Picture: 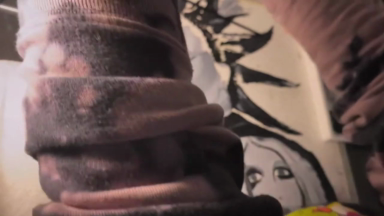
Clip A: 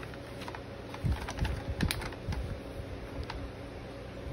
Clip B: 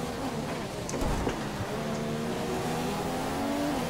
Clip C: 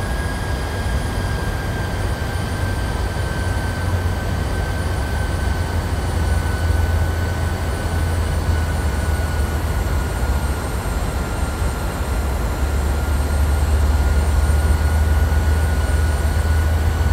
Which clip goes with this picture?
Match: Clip A